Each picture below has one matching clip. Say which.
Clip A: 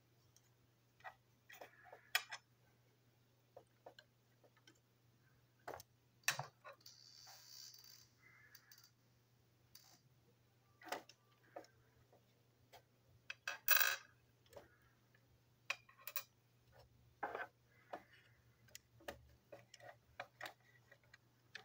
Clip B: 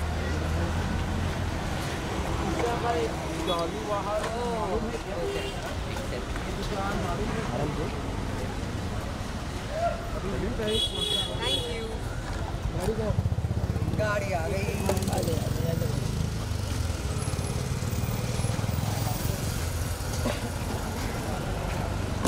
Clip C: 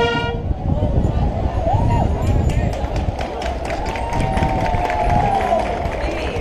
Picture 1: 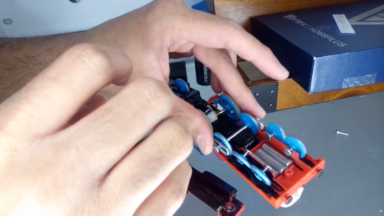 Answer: A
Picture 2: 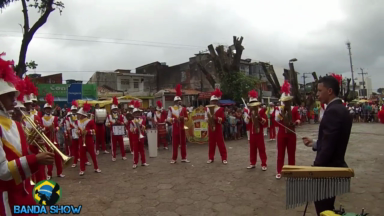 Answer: C